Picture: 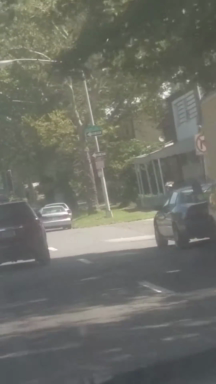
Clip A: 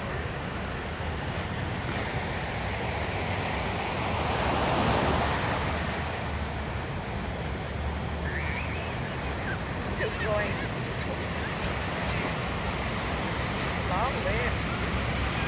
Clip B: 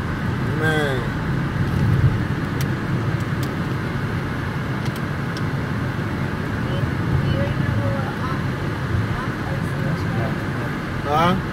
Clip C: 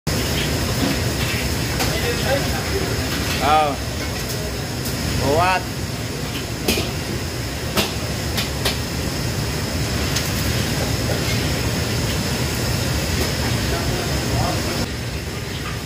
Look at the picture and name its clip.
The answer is B